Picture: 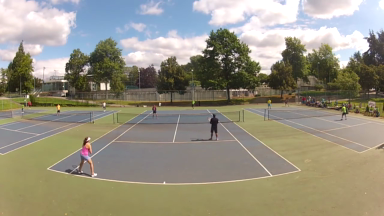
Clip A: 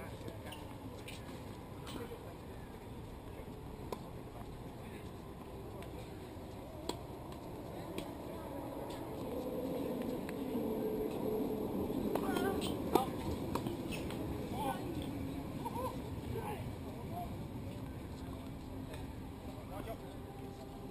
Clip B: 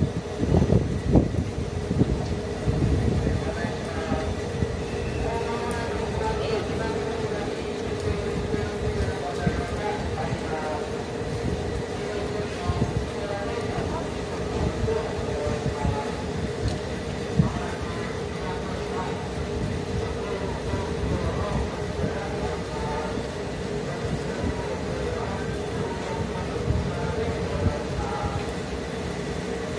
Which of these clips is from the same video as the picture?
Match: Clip A